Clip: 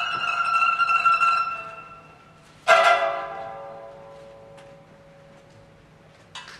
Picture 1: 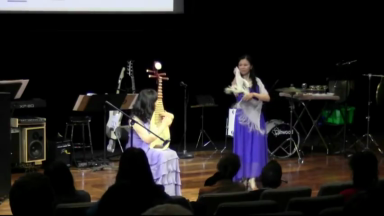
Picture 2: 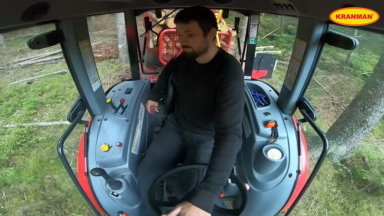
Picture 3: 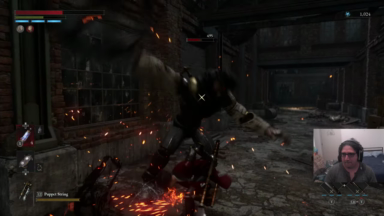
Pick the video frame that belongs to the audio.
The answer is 1